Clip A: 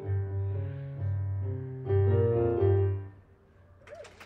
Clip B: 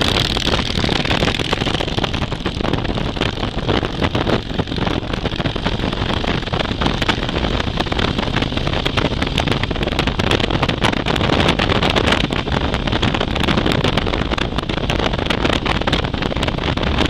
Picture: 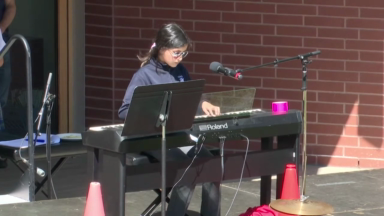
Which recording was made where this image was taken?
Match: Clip A